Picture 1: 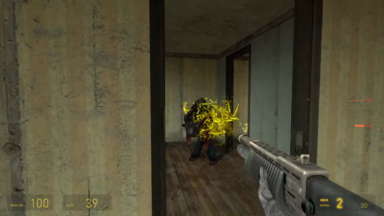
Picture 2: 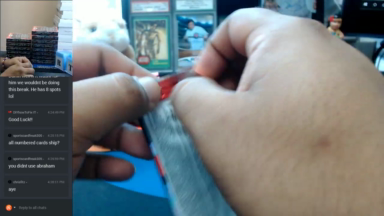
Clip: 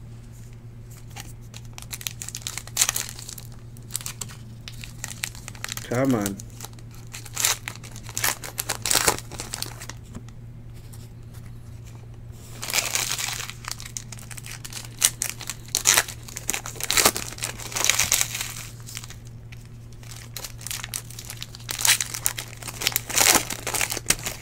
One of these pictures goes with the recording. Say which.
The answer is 2